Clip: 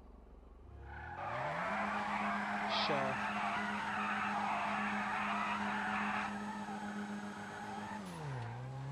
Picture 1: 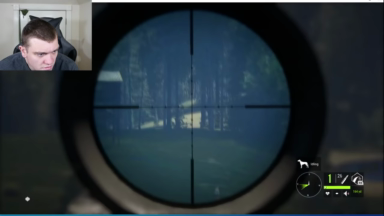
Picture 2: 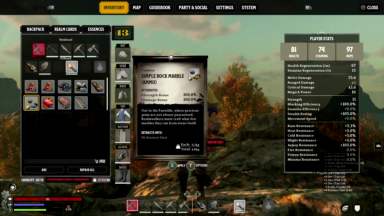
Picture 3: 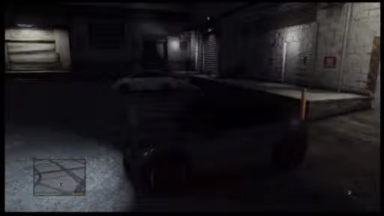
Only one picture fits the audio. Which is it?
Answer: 3